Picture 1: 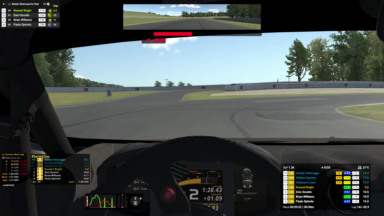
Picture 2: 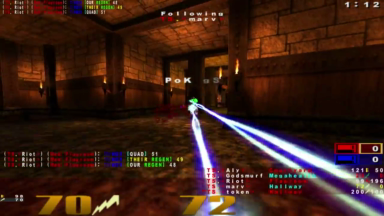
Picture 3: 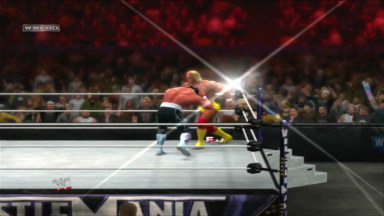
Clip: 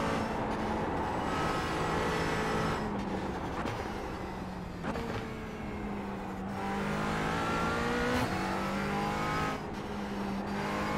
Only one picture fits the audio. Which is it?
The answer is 1